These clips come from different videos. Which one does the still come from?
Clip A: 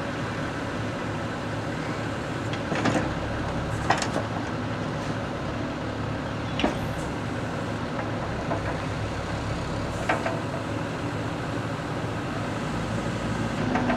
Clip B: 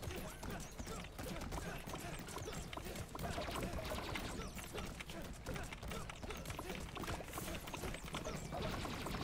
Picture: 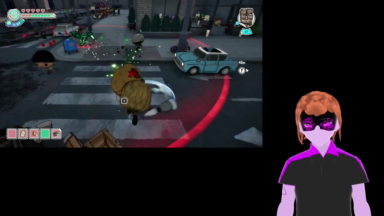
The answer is B